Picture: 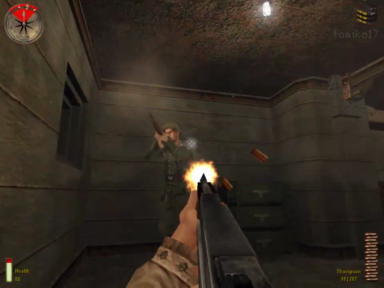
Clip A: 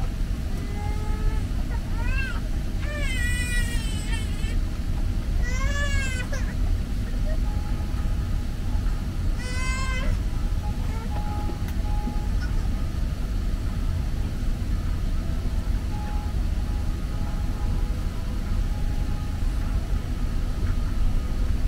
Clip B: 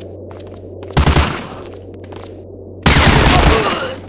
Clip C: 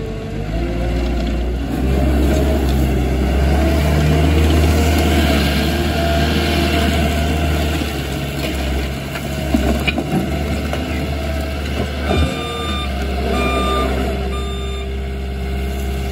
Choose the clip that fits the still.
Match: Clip B